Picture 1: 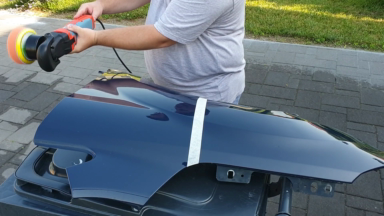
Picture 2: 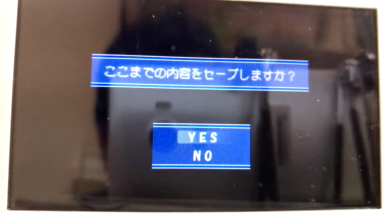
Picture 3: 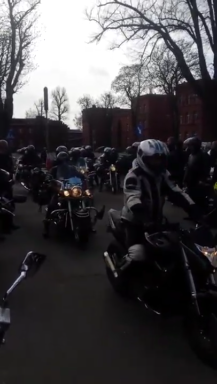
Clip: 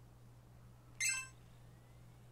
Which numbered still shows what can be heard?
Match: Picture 2